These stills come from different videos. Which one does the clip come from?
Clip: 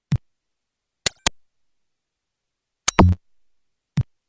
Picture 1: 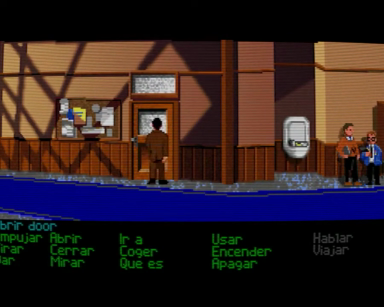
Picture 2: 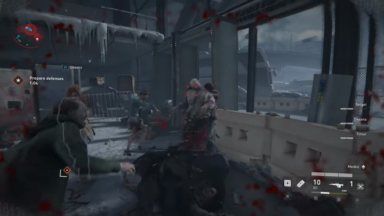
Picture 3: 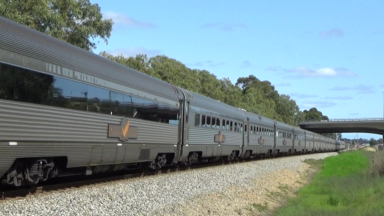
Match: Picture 1